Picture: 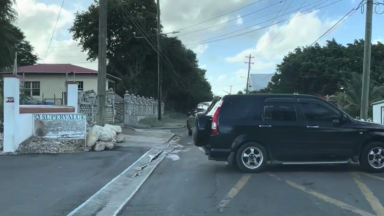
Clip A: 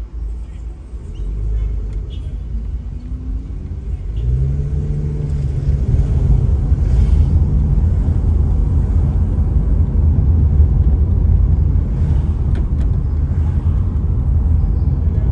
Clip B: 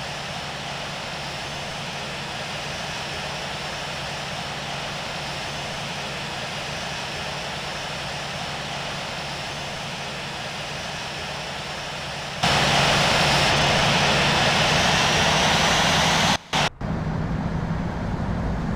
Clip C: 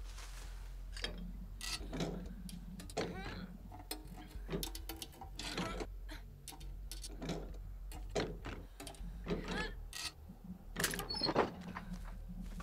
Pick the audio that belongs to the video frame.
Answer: A